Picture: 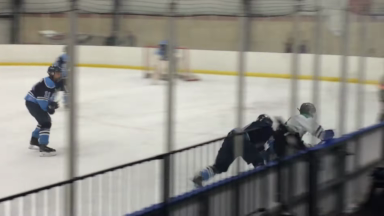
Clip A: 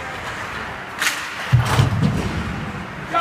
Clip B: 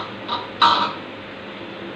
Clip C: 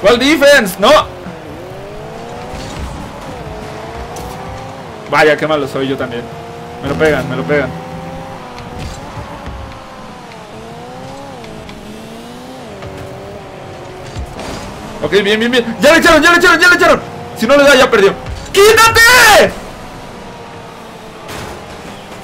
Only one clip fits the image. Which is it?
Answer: A